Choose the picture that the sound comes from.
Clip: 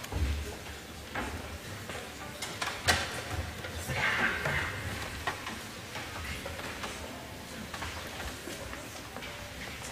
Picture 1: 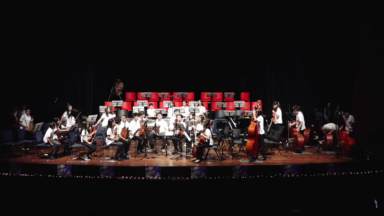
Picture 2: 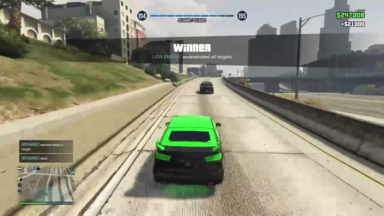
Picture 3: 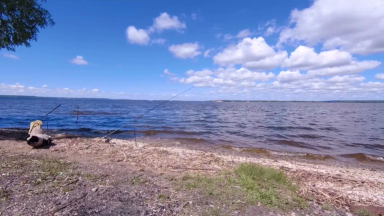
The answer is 1